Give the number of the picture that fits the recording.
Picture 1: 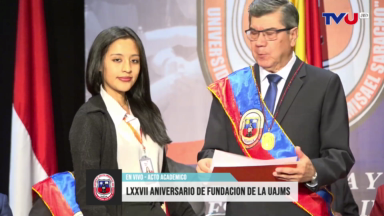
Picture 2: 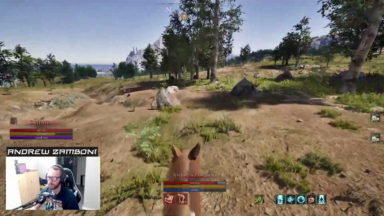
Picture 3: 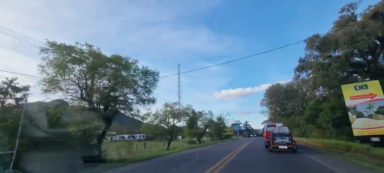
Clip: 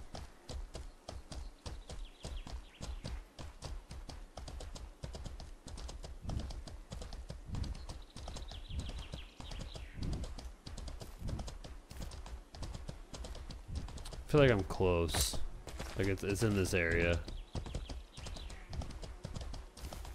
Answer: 2